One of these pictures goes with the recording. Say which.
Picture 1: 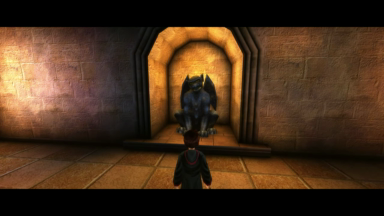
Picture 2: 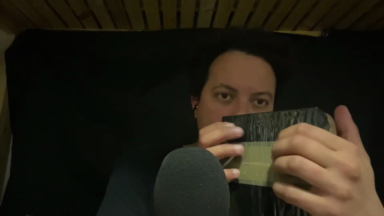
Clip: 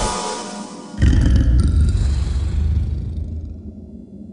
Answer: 1